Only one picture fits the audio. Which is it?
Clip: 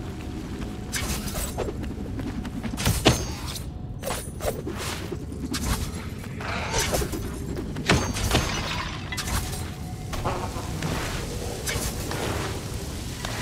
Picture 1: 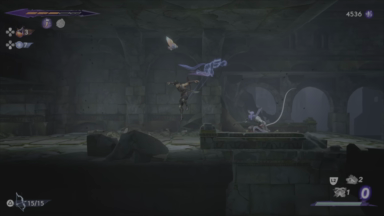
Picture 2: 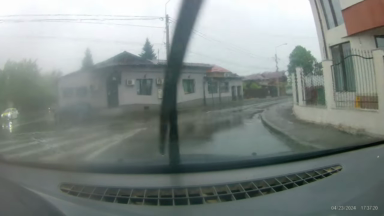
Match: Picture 1